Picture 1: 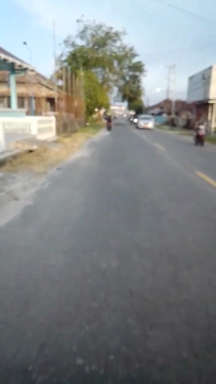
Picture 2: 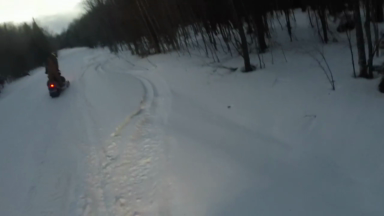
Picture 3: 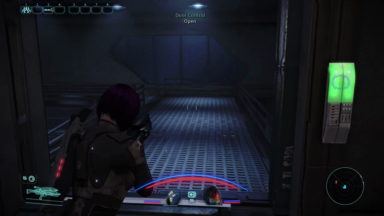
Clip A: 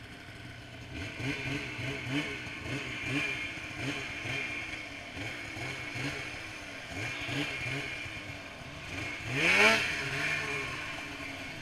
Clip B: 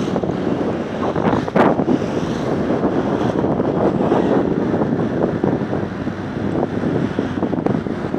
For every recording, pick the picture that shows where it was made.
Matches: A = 2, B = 1